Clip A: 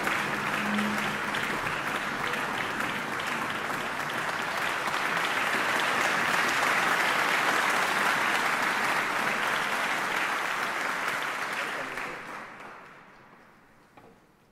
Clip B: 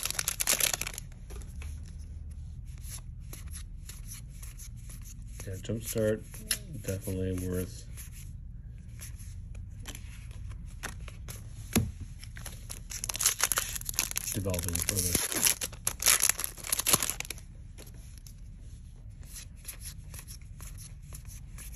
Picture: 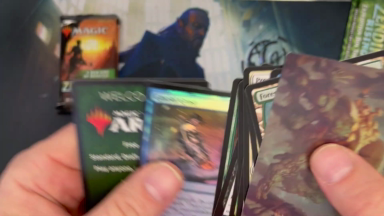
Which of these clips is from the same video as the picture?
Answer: B